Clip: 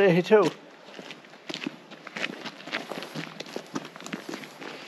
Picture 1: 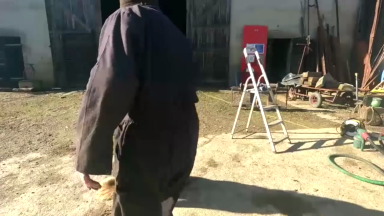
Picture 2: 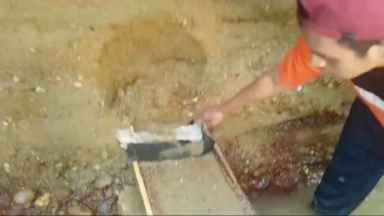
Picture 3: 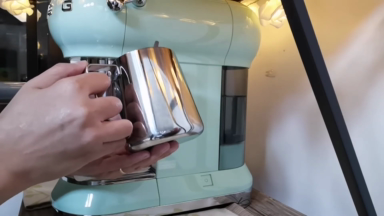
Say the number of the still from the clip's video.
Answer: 1